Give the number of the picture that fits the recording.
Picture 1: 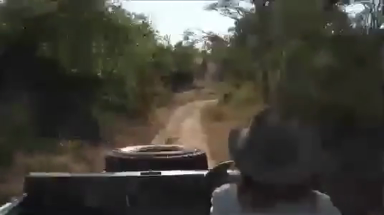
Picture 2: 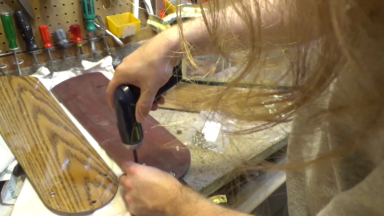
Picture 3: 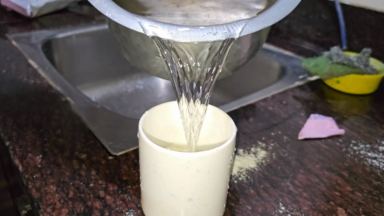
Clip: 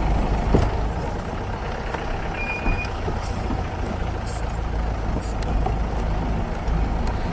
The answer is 1